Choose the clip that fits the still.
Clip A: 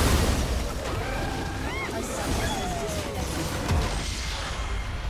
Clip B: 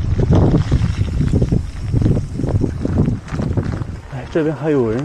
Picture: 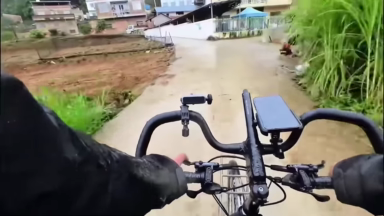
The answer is B